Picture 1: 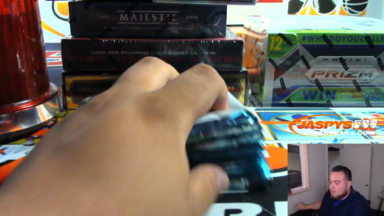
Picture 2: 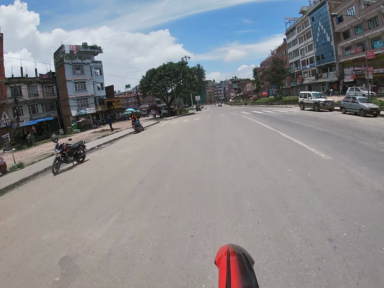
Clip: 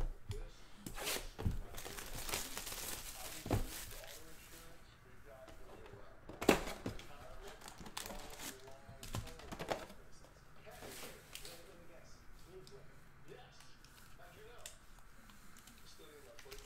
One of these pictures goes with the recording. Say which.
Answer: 1